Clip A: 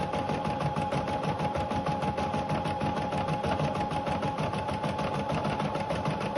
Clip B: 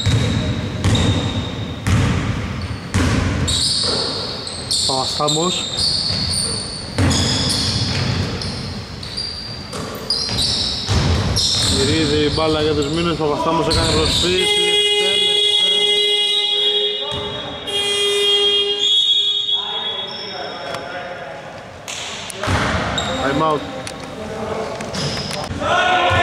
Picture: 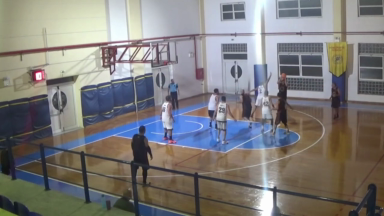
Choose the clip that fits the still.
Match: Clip B